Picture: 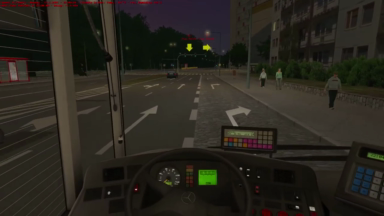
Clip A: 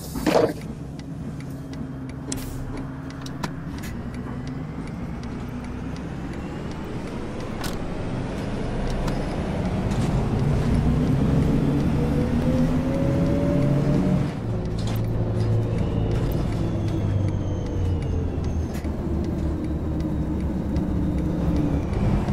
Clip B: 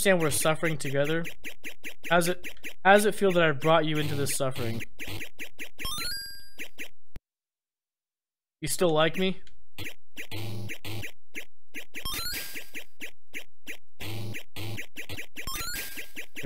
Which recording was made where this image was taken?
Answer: A